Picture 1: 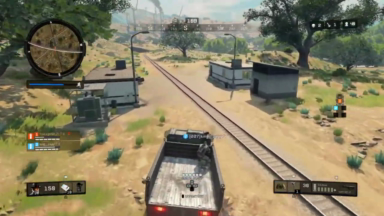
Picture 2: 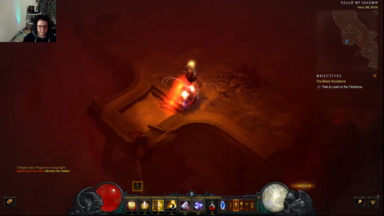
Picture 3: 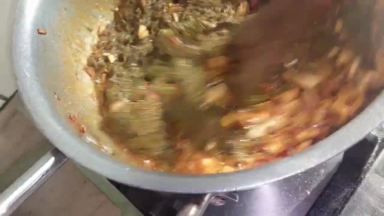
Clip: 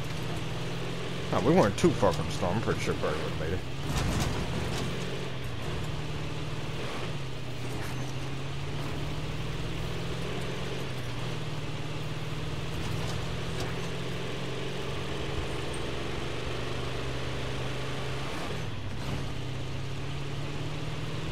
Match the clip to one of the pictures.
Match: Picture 1